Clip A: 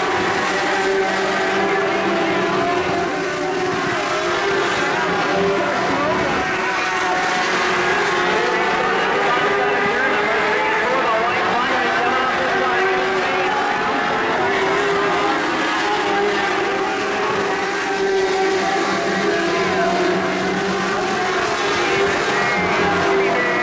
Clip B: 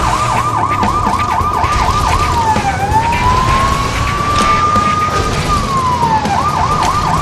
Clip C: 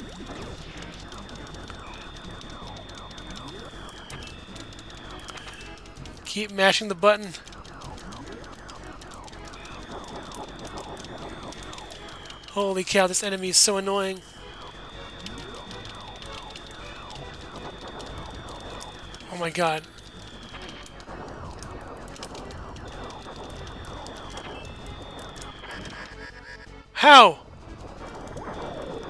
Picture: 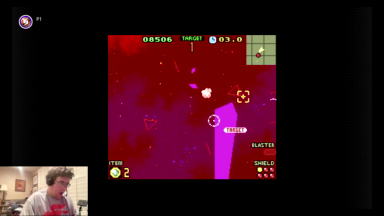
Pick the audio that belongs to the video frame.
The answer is C